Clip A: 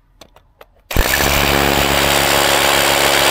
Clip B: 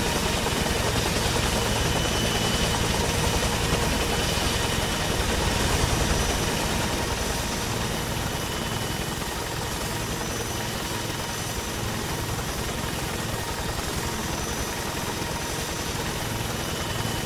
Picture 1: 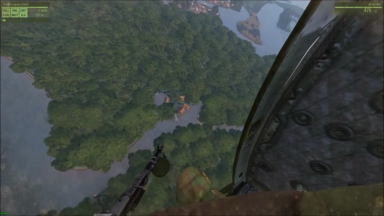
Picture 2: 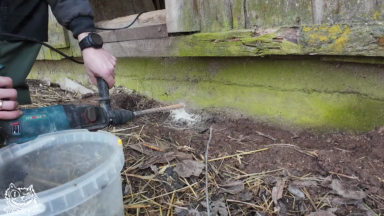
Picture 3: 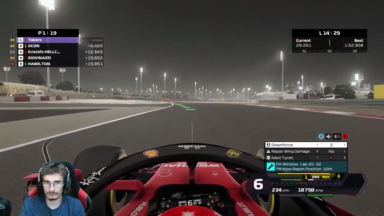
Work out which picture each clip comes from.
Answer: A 2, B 1